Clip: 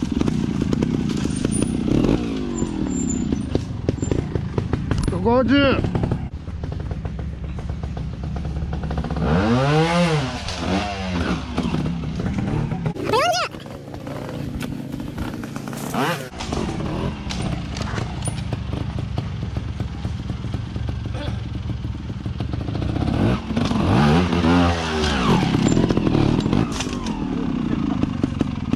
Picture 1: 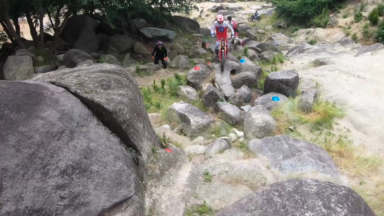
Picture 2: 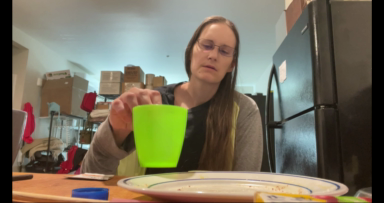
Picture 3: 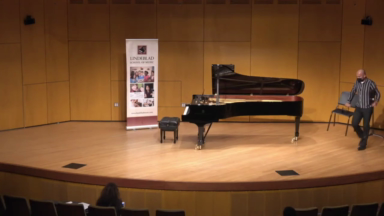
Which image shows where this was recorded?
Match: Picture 1